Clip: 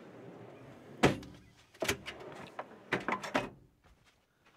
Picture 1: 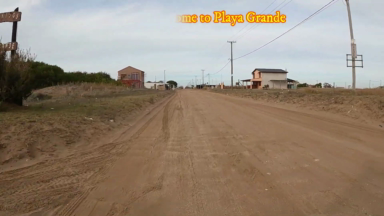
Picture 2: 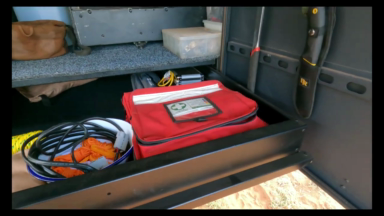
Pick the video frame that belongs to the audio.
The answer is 2